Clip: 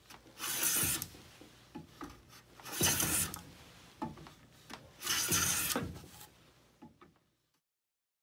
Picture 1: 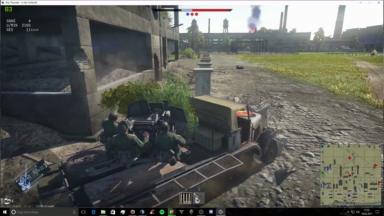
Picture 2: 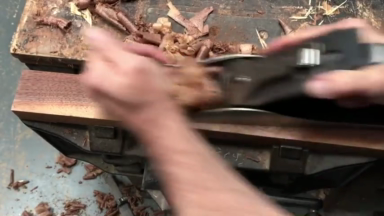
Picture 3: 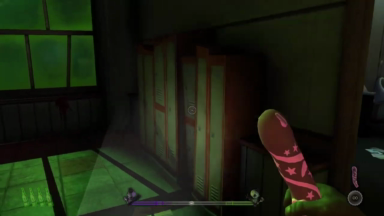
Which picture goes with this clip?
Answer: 2